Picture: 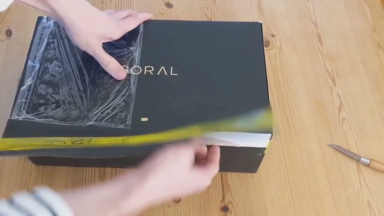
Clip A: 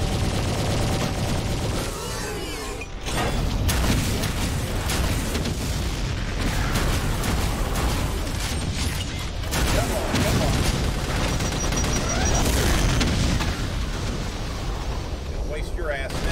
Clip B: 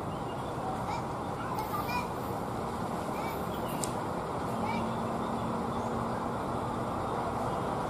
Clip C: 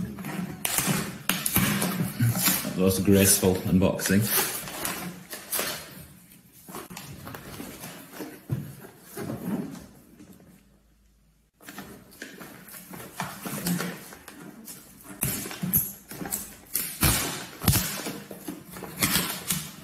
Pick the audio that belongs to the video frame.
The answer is C